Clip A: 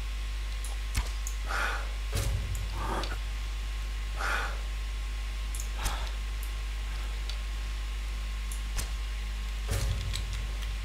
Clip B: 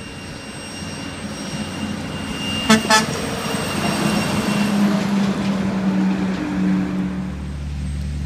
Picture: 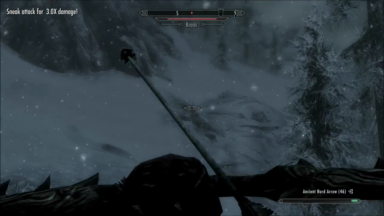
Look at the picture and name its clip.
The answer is A